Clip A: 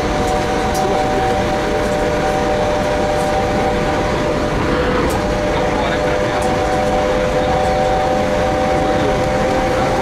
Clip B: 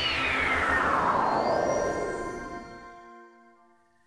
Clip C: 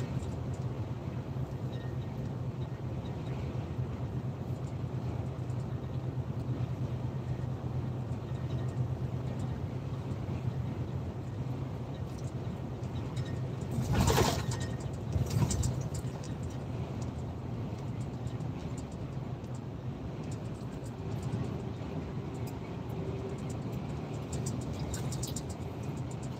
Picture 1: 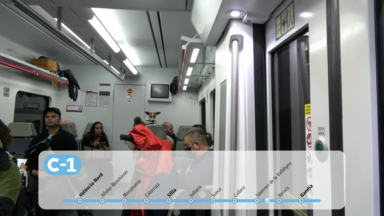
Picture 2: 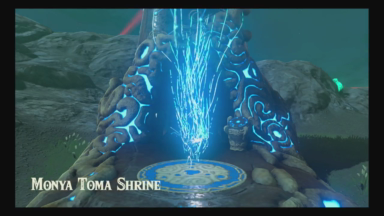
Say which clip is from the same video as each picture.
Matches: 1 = A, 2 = B